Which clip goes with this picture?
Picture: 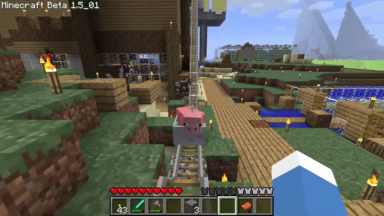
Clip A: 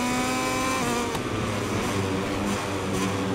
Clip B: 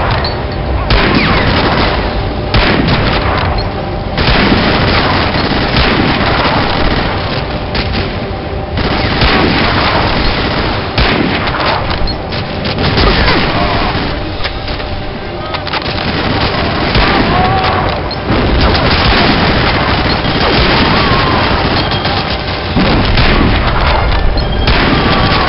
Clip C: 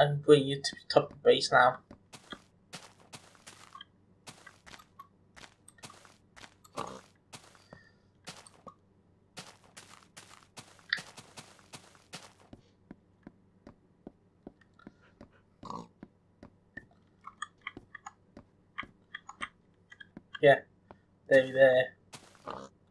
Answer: C